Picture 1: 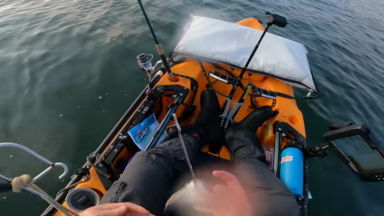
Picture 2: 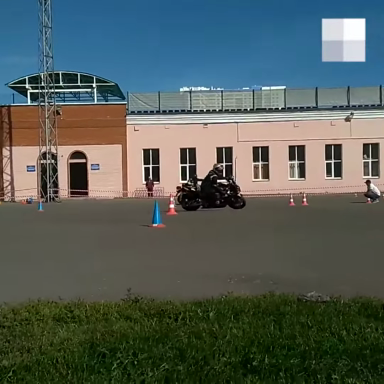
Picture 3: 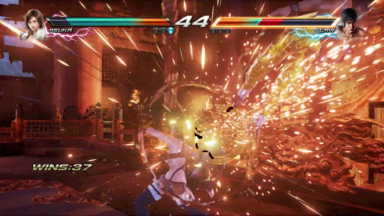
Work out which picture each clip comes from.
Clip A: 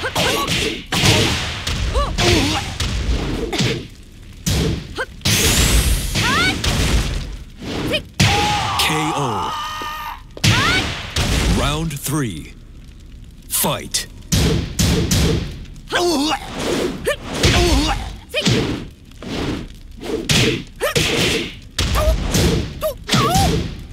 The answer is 3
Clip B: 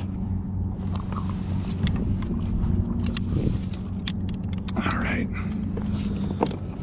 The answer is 1